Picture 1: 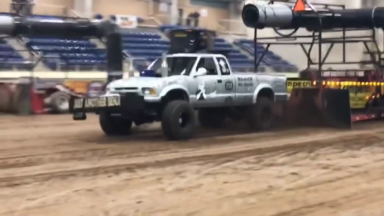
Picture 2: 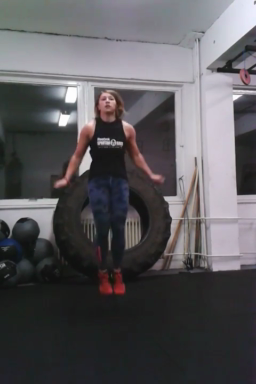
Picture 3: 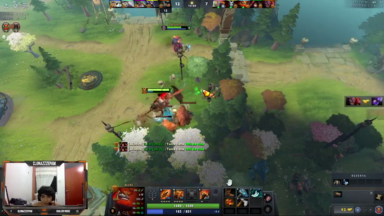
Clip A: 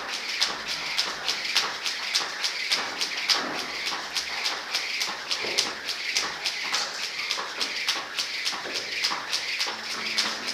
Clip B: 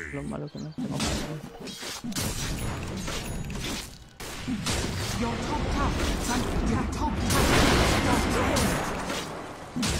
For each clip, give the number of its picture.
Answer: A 2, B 3